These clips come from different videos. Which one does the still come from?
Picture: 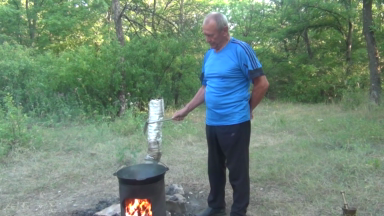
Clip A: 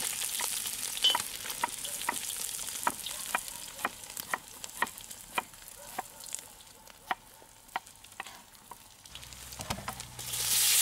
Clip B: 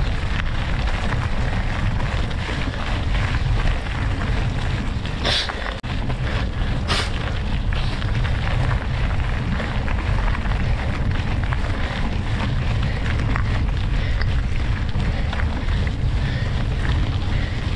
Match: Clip A